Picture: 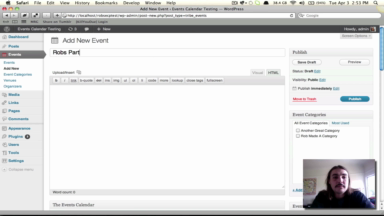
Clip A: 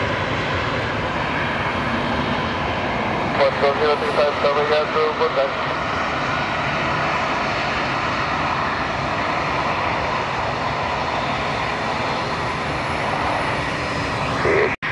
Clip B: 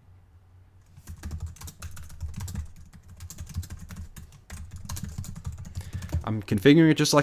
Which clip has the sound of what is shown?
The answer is B